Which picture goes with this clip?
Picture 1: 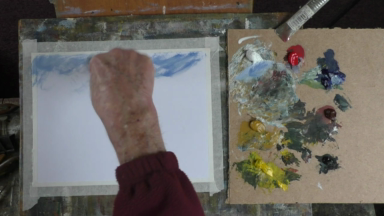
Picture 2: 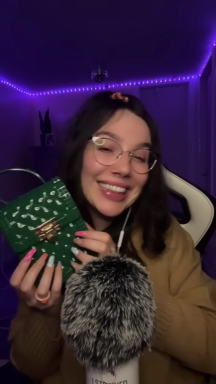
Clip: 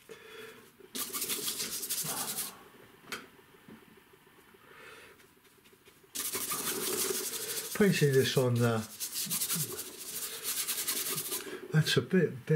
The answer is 1